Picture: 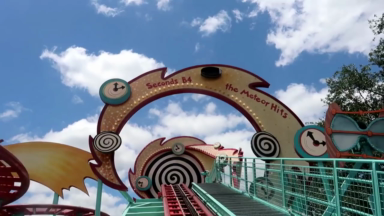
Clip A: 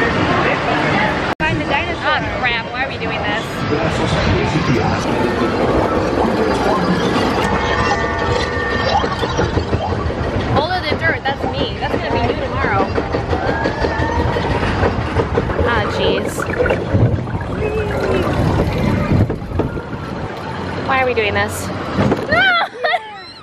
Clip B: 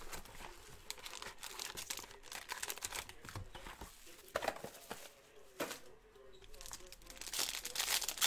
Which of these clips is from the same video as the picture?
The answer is A